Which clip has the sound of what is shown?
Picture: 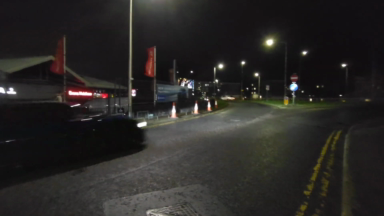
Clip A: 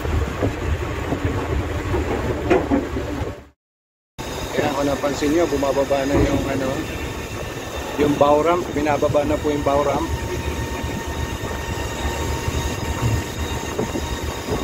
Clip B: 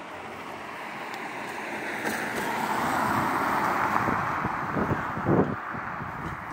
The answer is B